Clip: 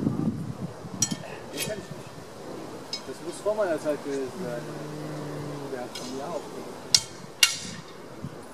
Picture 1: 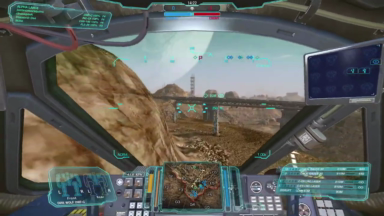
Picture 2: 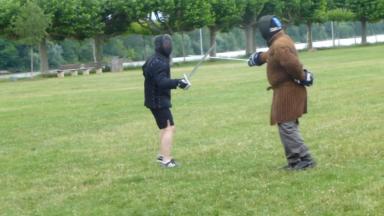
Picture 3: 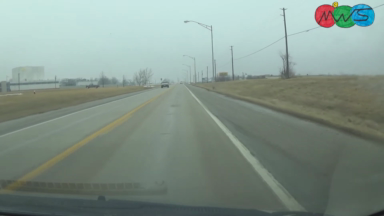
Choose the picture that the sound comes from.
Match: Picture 2